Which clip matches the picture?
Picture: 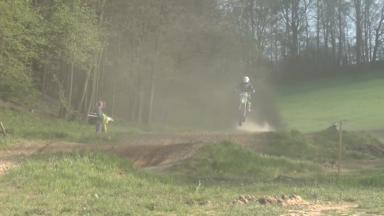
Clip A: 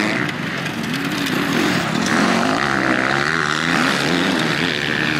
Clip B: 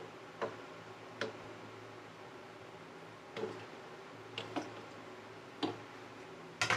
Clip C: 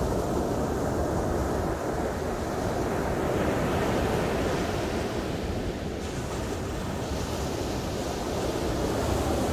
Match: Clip A